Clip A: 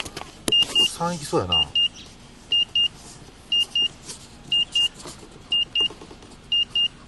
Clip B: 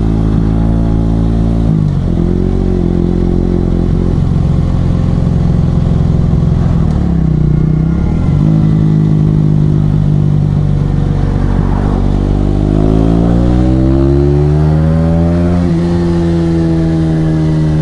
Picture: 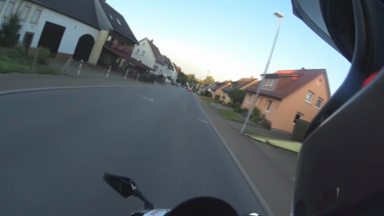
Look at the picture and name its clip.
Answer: B